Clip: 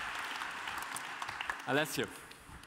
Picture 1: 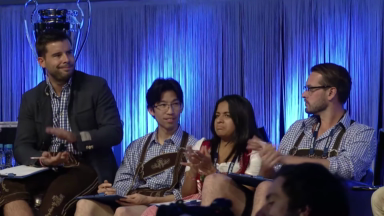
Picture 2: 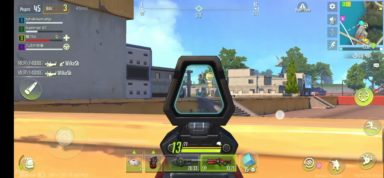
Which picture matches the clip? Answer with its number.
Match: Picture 1